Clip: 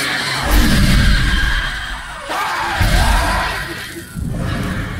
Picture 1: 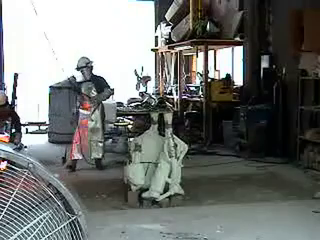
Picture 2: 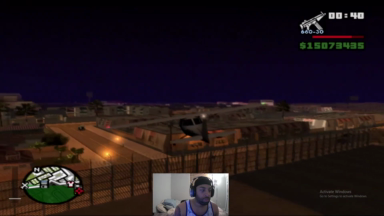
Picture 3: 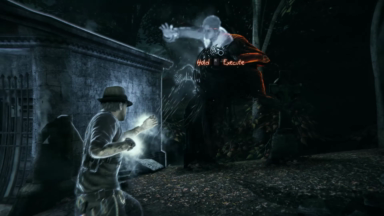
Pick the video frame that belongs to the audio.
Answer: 3